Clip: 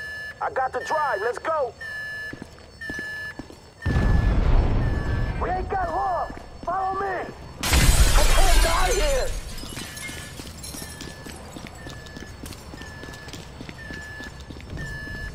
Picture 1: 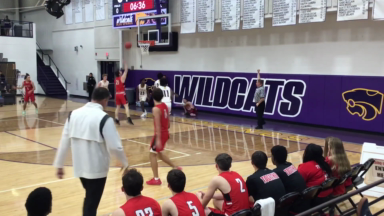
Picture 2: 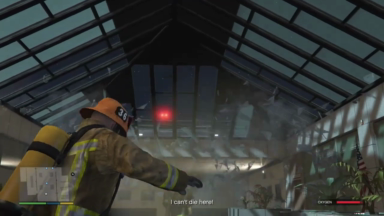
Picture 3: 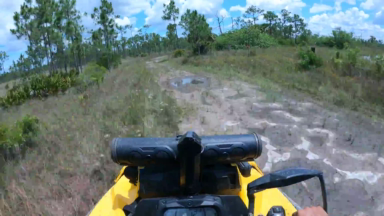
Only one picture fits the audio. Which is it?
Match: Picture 2